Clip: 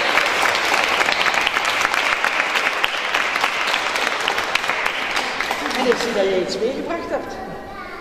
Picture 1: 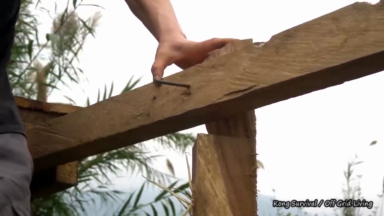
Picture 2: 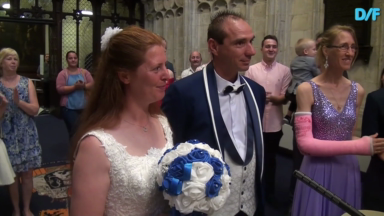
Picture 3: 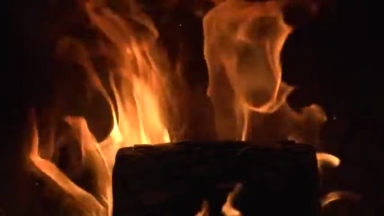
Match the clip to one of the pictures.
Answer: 2